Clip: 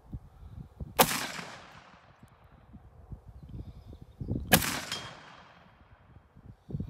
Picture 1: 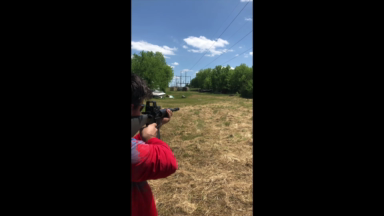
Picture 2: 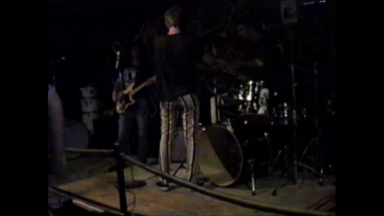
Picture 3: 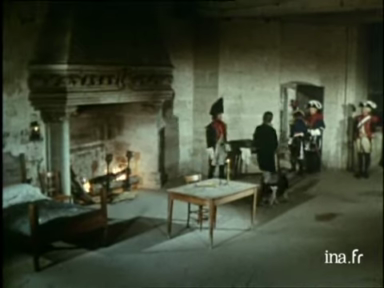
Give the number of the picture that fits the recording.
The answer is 1